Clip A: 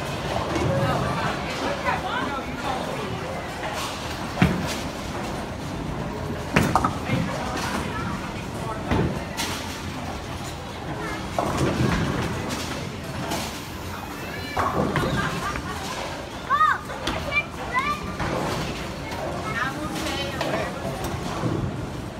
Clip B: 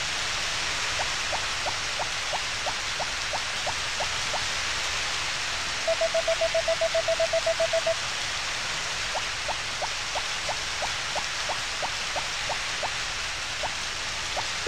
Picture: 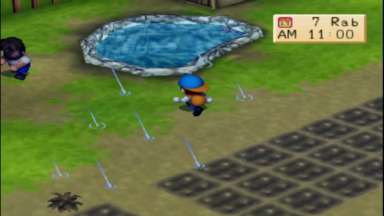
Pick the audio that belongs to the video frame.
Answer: B